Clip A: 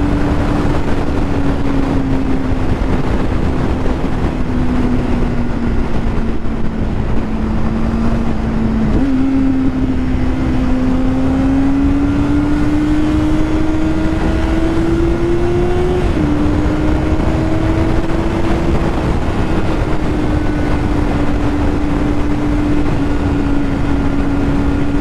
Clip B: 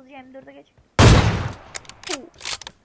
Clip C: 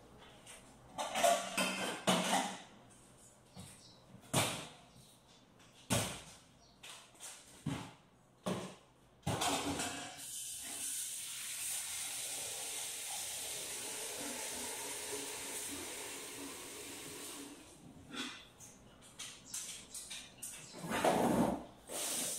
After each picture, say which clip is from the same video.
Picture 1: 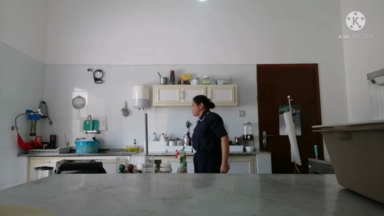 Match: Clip C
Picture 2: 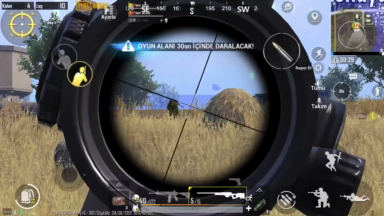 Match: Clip B